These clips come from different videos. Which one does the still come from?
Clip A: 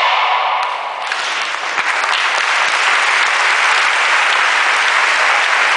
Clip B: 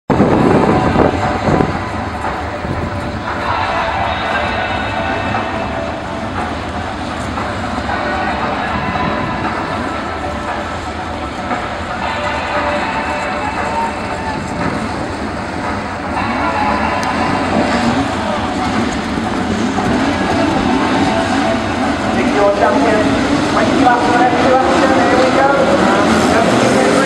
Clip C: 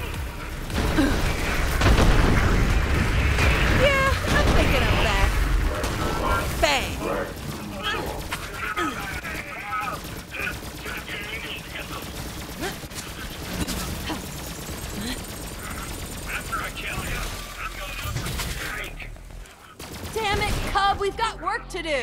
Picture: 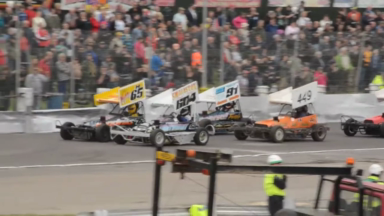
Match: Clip B